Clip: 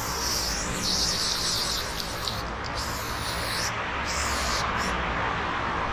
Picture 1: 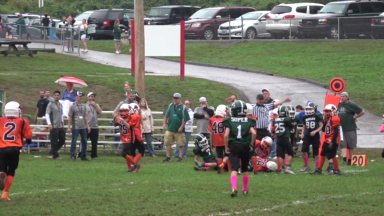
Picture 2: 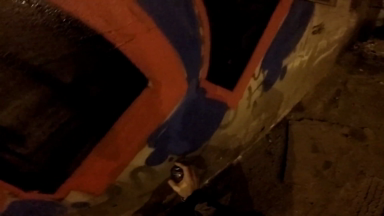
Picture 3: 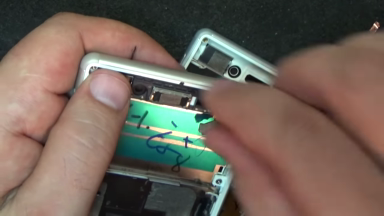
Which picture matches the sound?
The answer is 2